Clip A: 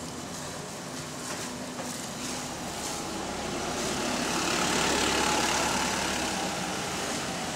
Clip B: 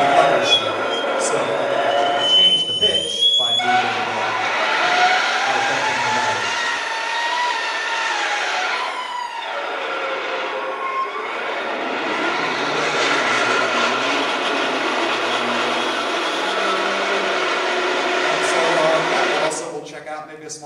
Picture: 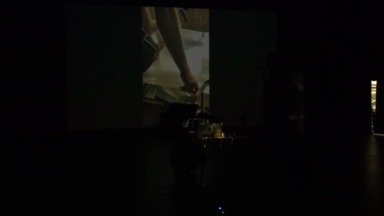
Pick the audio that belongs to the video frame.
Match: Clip B